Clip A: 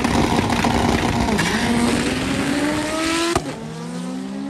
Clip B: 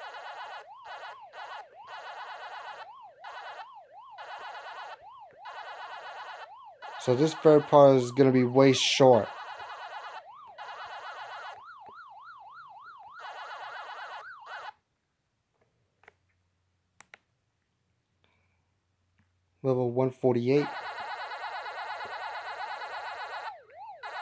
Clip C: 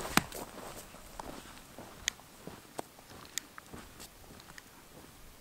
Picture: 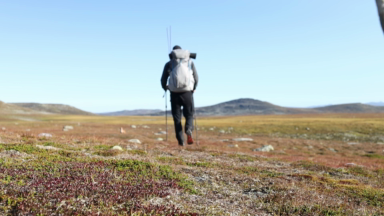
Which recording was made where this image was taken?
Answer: C